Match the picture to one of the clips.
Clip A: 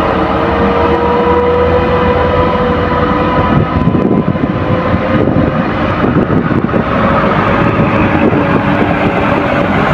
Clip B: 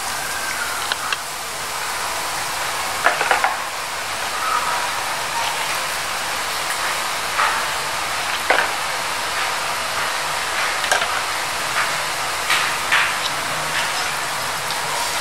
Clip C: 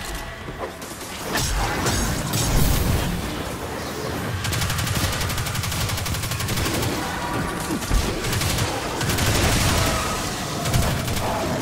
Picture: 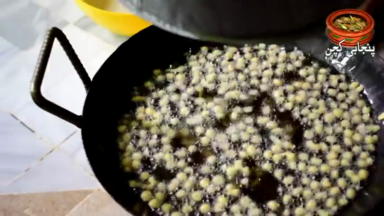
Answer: B